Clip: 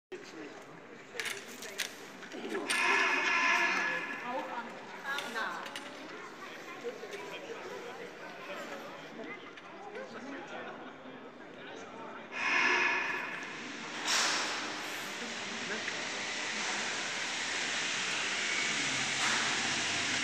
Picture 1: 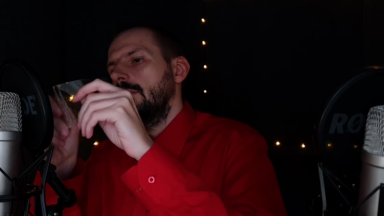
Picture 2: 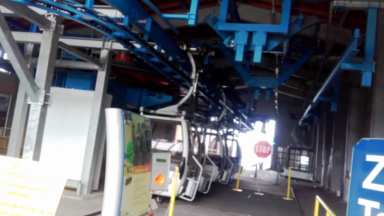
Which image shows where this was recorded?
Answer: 2